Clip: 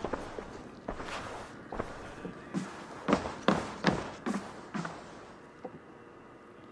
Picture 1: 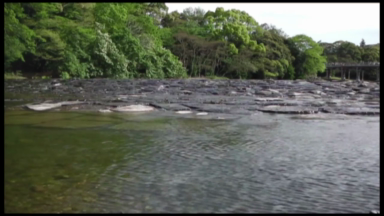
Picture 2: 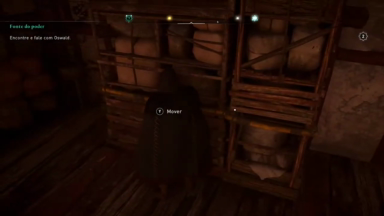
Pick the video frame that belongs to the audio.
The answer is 2